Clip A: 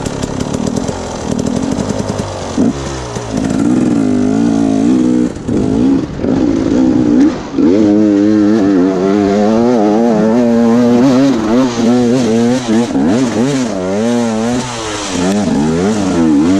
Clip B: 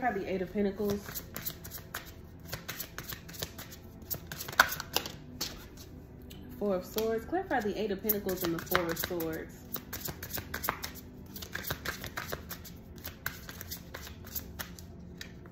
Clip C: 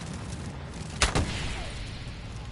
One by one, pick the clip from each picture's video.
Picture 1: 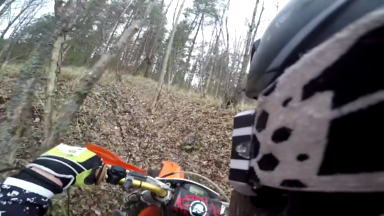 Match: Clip A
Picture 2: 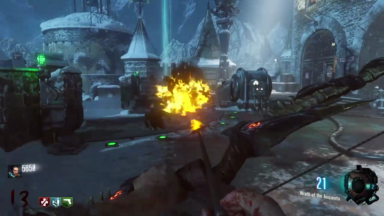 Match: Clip C